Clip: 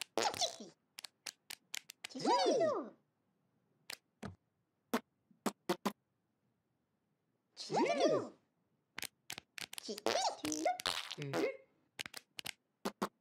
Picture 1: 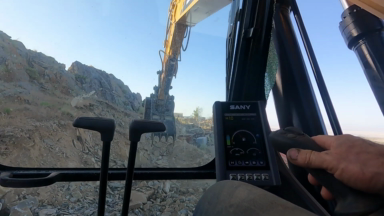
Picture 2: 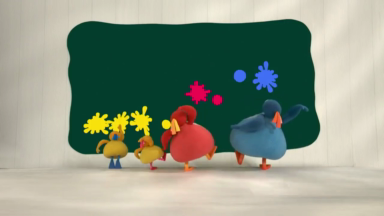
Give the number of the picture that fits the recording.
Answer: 2